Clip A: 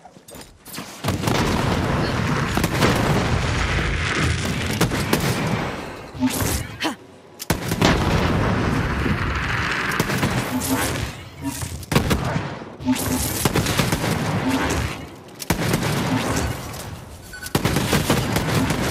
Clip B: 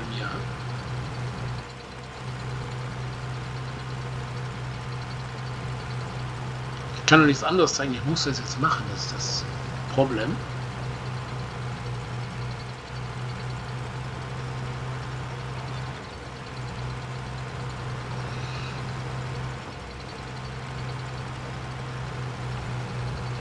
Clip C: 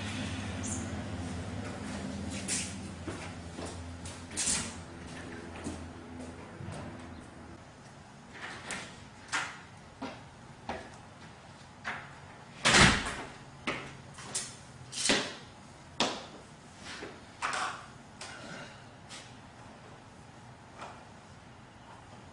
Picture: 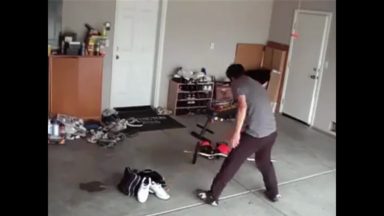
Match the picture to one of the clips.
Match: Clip C